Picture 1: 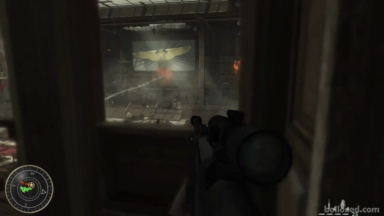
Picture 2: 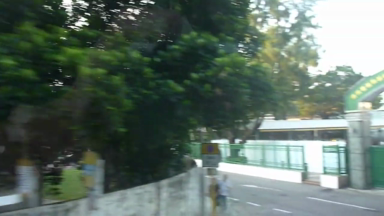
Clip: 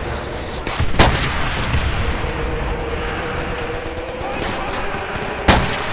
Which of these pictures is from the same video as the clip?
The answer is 1